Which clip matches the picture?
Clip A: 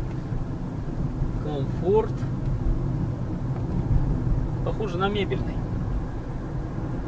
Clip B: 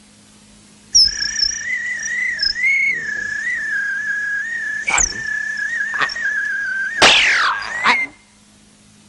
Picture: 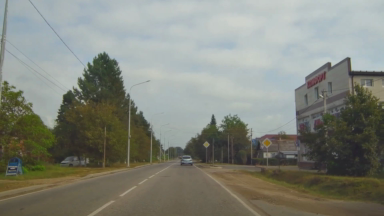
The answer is A